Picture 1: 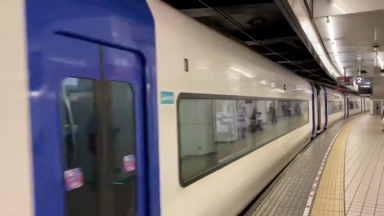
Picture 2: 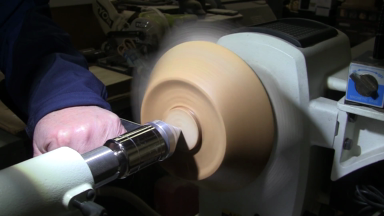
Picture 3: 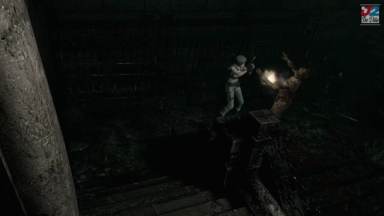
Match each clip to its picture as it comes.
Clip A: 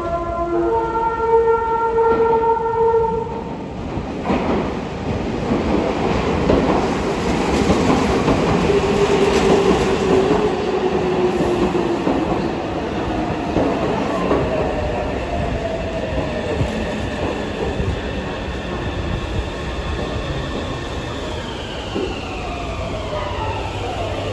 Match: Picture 1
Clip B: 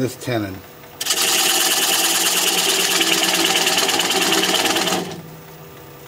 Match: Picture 2